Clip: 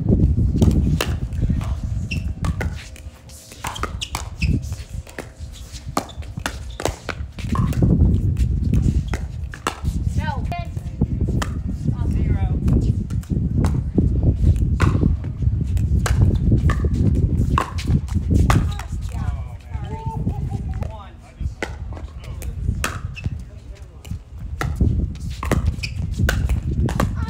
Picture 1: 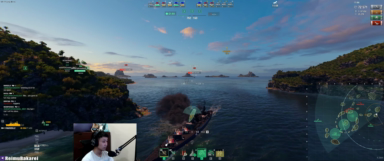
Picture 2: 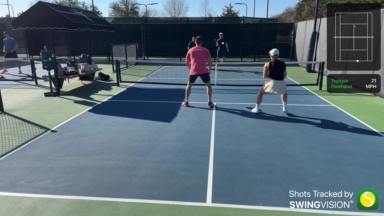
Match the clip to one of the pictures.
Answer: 2